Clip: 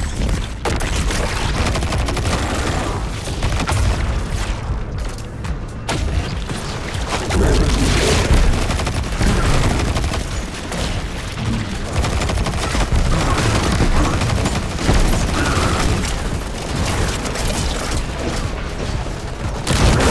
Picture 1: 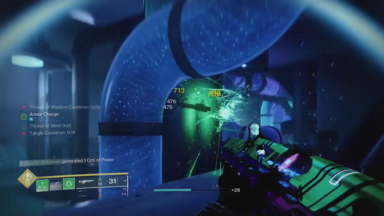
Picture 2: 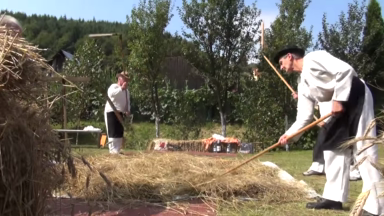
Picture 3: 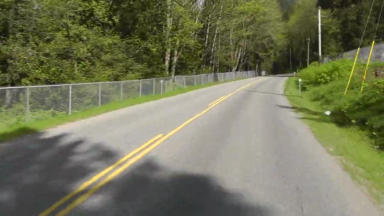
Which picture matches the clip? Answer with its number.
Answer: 1